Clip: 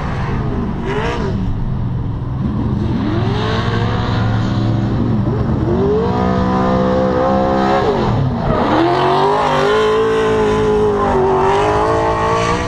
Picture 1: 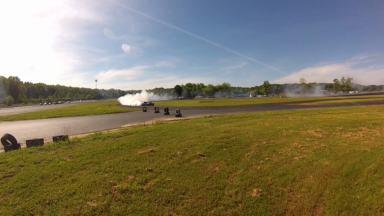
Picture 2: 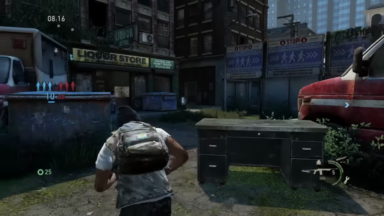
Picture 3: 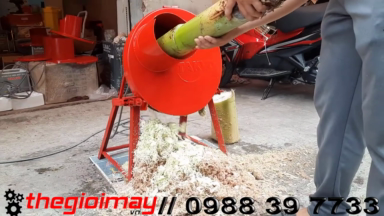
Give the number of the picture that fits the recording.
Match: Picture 1